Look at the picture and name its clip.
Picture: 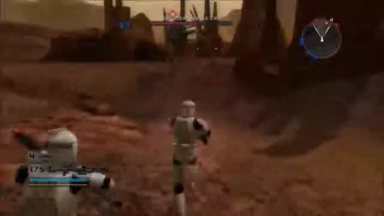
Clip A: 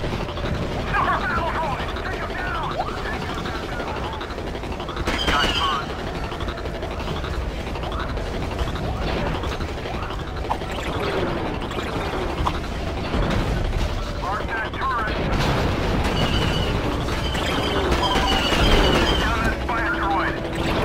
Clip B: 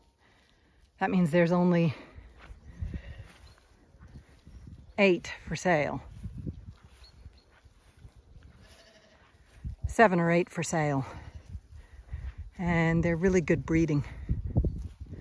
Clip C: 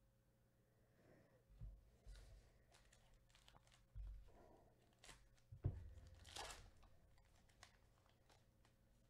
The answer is A